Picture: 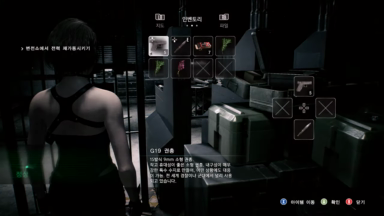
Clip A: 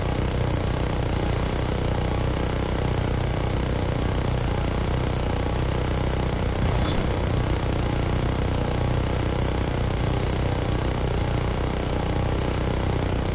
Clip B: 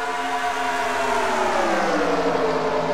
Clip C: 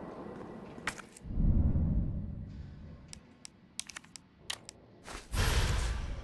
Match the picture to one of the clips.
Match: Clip C